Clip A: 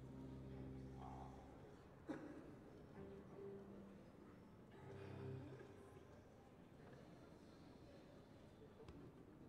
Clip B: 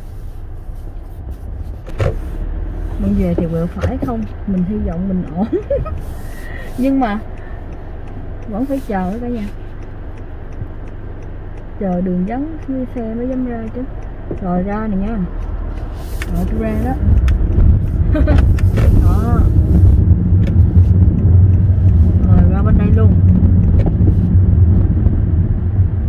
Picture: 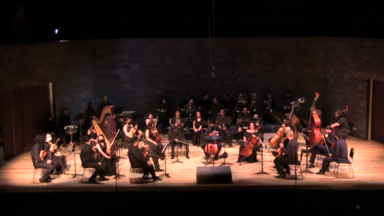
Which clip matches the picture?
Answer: A